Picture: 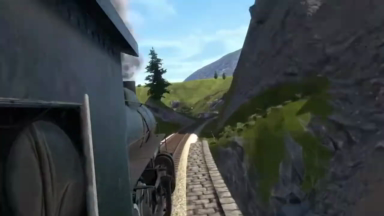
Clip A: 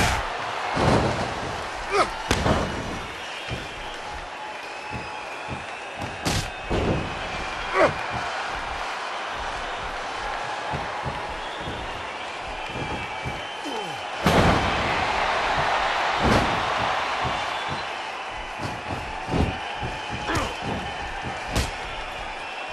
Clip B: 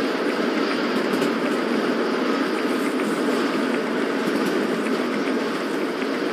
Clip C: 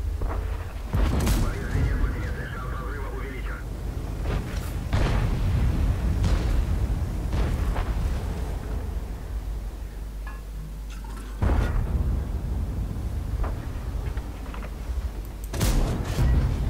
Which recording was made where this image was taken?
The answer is B